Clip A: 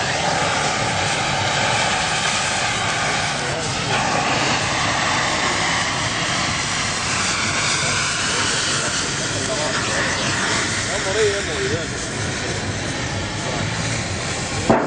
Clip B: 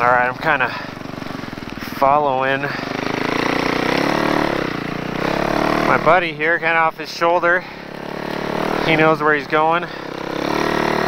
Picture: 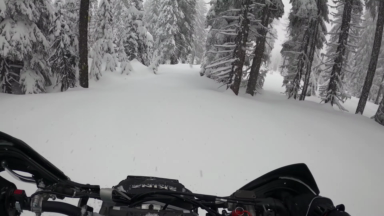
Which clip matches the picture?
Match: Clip B